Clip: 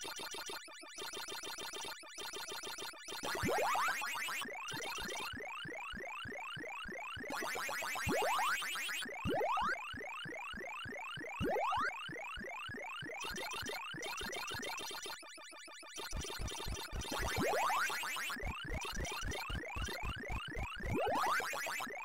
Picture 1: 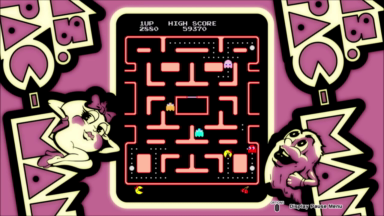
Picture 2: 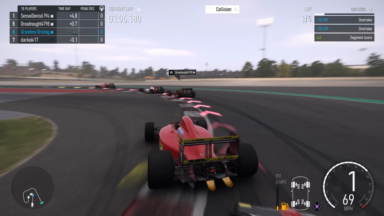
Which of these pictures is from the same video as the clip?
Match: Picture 1